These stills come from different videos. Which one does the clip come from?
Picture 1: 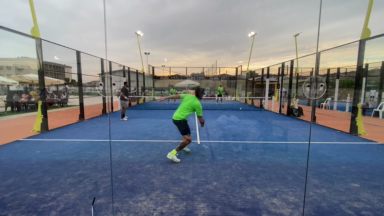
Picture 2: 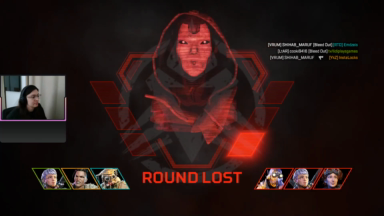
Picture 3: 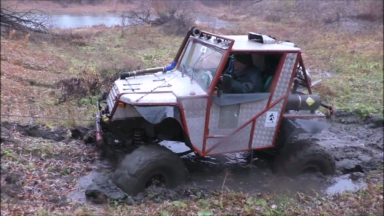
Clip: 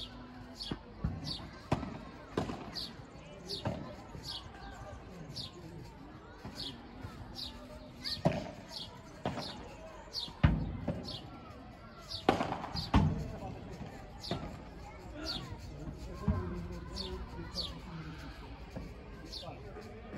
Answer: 1